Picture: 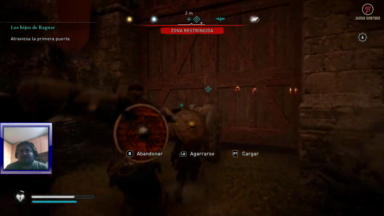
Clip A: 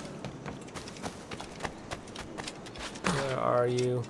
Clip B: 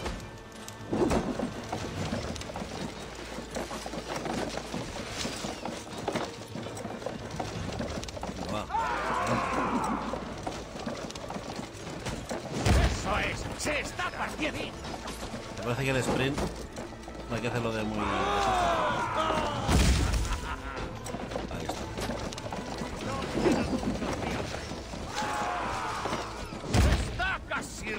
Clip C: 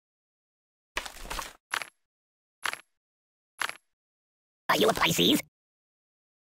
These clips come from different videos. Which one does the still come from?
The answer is B